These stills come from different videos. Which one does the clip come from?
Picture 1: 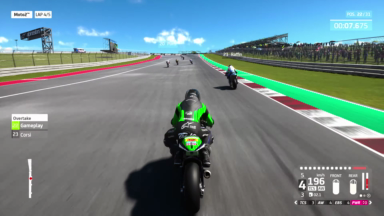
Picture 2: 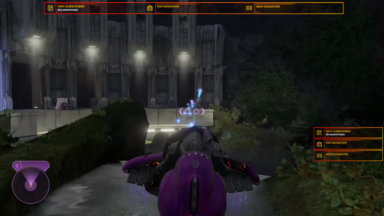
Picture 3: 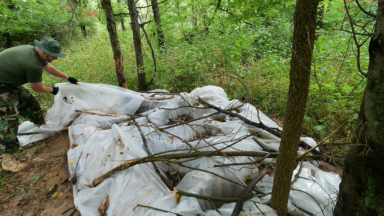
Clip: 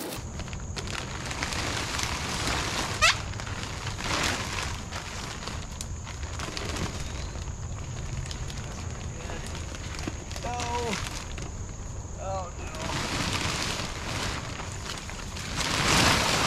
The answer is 3